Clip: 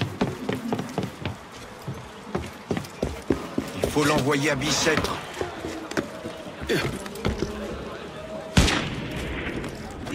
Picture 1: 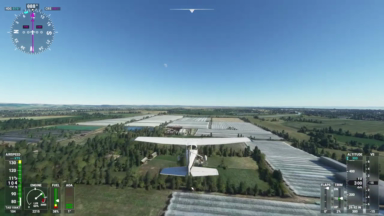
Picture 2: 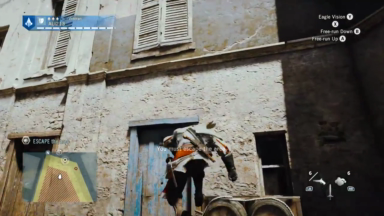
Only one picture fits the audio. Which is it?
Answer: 2